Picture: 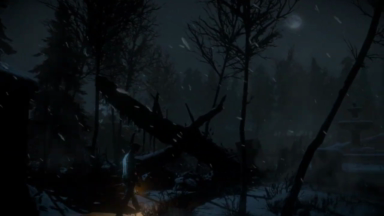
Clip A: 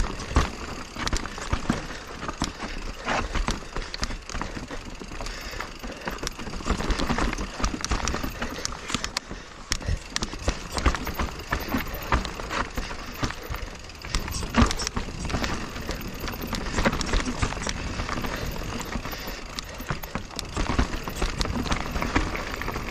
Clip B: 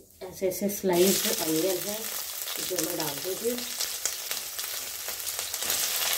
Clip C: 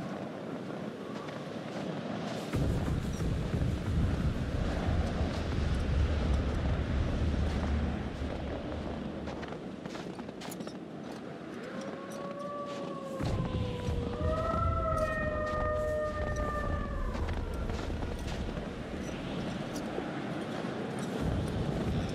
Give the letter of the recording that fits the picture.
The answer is C